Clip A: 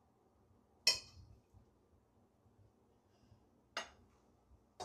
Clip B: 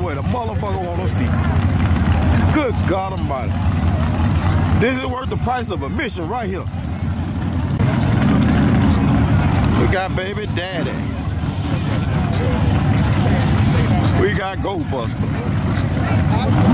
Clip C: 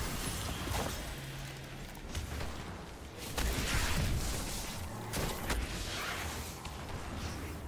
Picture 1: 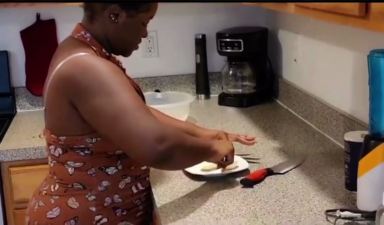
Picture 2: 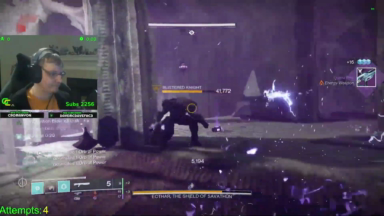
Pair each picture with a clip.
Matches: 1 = A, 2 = C